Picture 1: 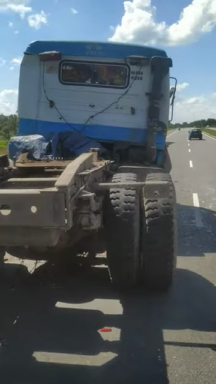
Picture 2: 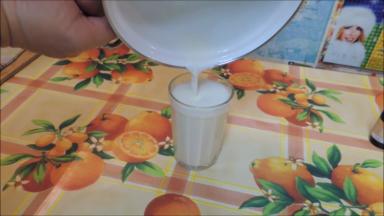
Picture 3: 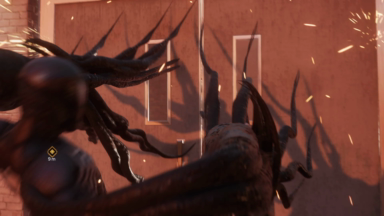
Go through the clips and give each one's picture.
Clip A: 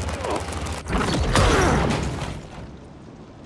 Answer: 3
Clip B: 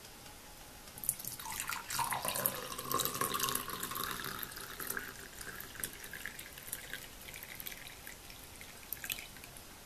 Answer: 2